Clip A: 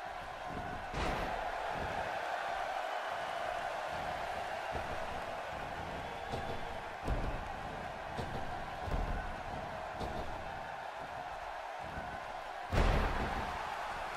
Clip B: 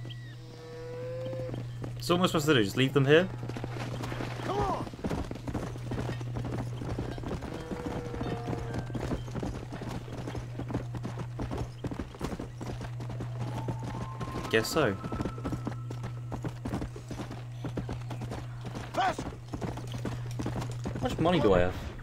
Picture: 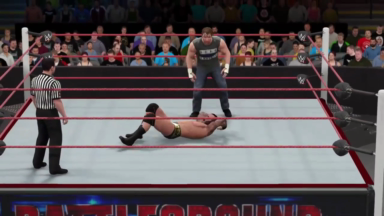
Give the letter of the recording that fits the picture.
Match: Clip A